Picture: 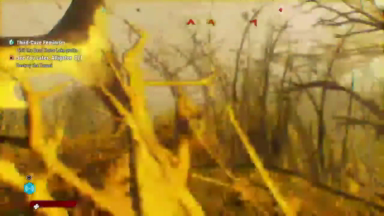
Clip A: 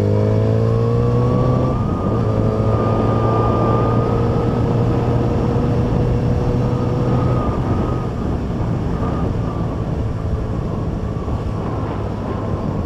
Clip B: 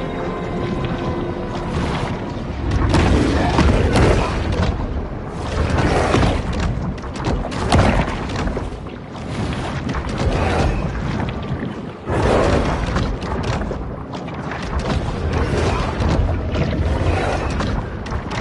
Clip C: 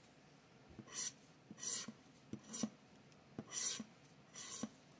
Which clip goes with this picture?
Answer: B